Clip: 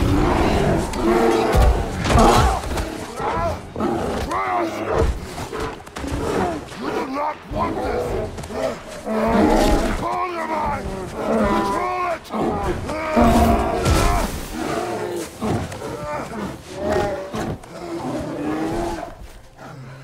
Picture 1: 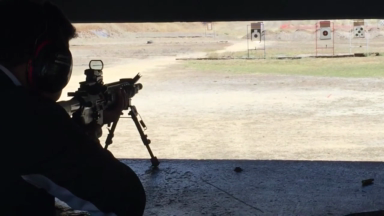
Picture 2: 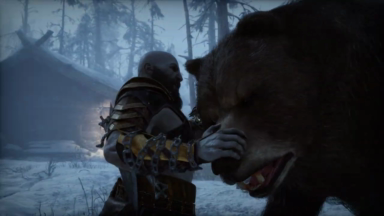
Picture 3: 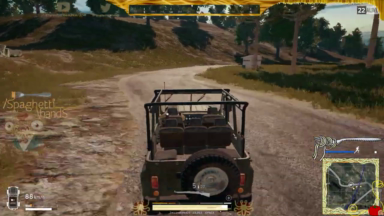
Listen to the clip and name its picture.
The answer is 2